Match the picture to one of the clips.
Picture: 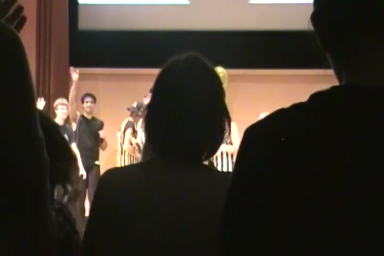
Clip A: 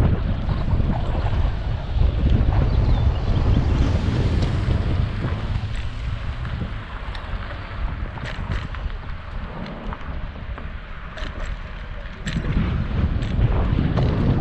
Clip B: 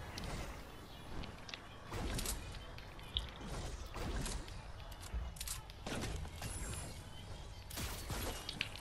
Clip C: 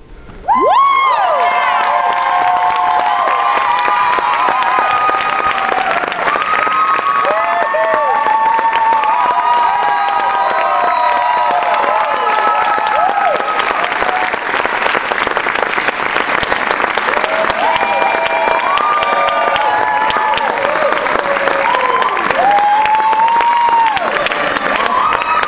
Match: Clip C